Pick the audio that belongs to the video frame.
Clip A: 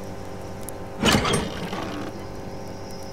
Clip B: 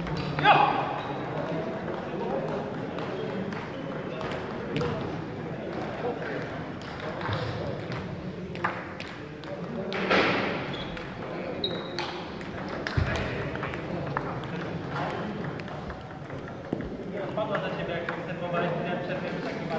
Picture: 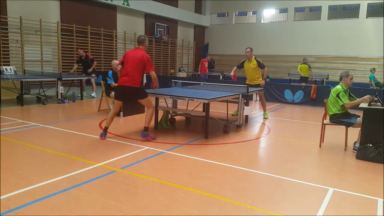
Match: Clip B